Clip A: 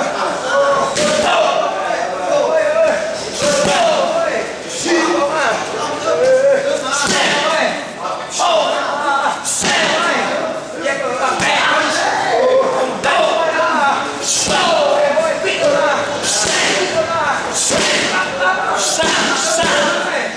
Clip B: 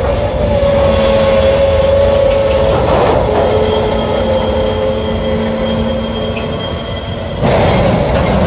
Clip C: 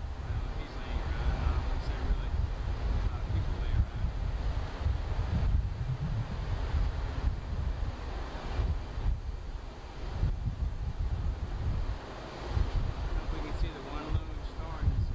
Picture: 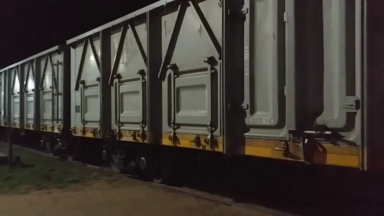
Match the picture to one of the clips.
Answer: B